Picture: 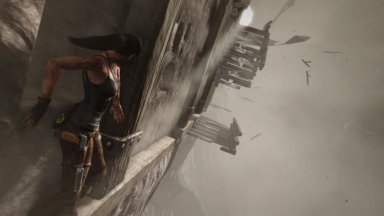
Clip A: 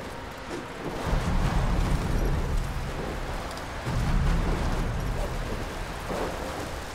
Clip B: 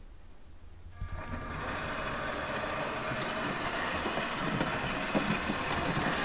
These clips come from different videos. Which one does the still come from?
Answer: A